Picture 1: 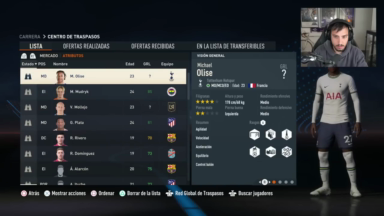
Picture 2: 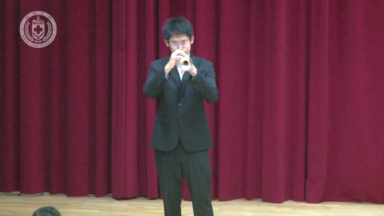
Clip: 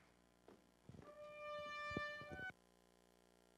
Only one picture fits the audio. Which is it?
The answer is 2